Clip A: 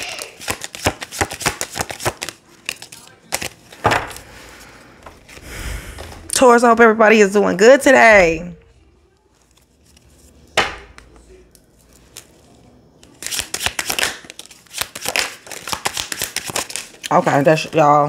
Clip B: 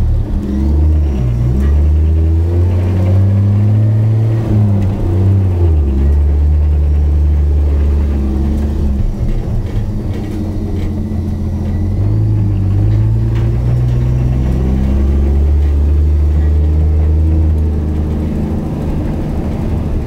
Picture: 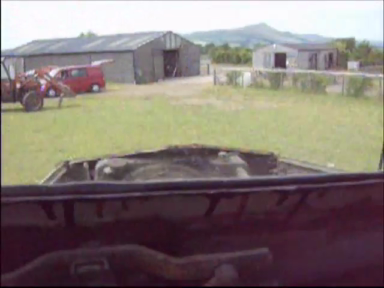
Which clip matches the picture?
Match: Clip B